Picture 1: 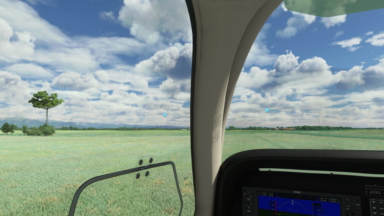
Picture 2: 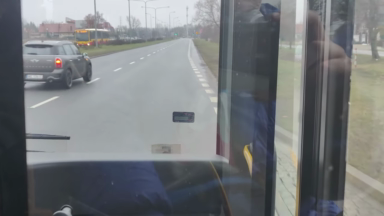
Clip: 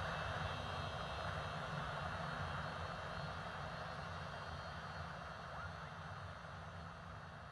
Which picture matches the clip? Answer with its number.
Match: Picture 1